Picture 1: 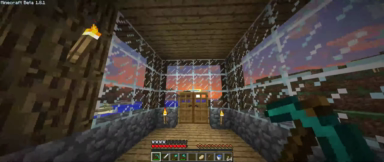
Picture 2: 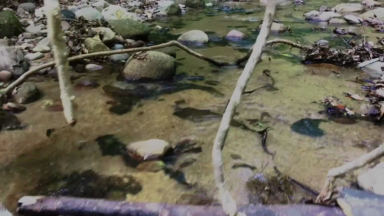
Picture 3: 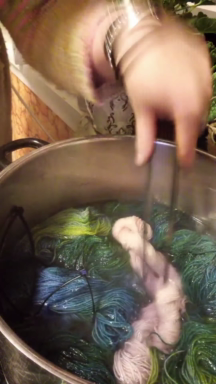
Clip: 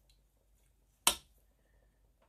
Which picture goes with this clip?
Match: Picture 3